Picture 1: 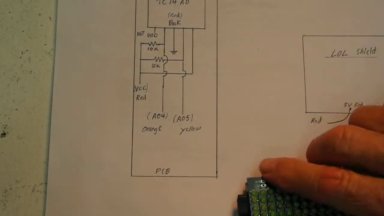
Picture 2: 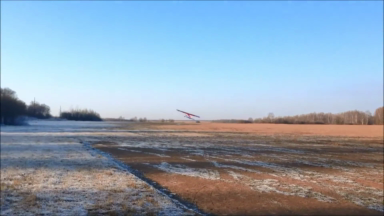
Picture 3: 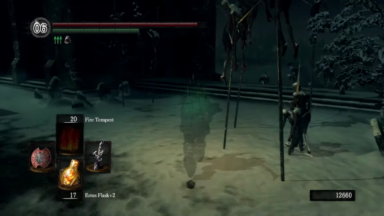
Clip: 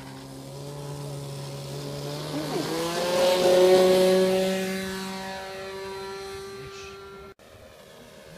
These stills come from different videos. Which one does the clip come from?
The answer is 2